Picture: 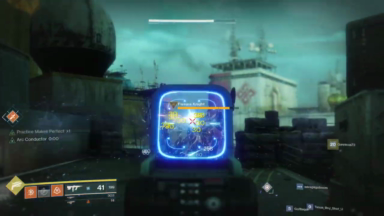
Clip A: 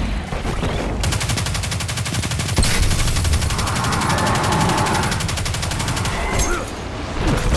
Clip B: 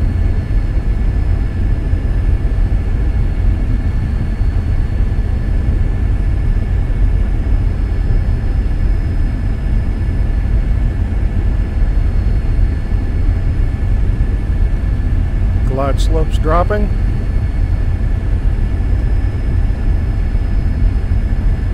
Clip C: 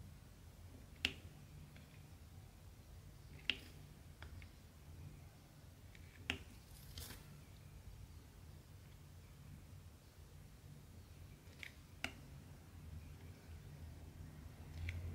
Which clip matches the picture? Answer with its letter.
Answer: A